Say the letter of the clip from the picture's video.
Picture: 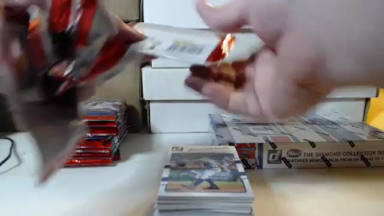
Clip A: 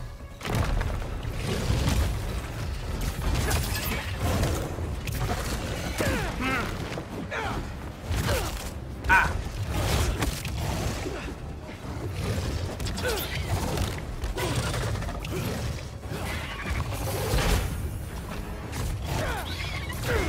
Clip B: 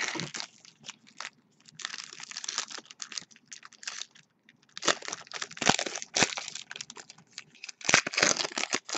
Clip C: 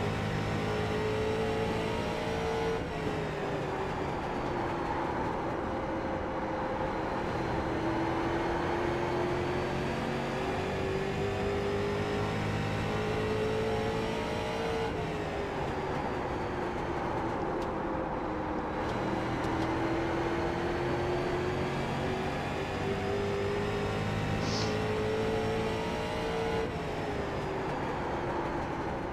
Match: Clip B